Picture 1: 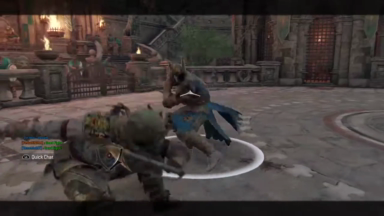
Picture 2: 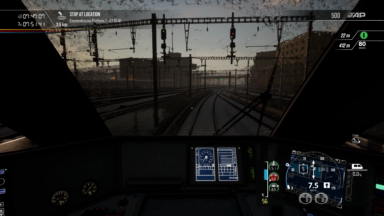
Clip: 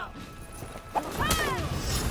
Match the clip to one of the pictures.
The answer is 1